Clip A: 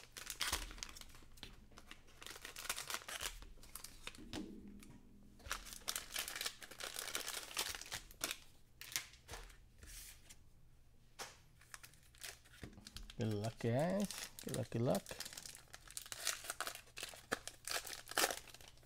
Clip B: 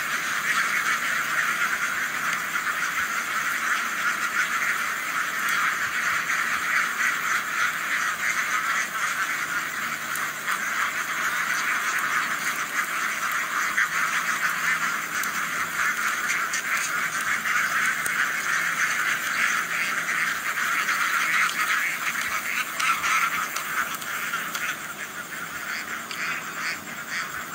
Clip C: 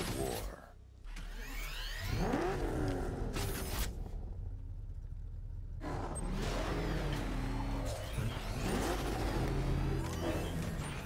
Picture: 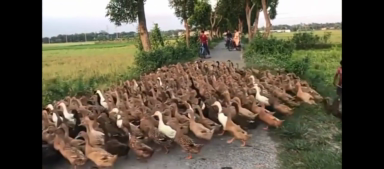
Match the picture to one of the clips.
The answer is B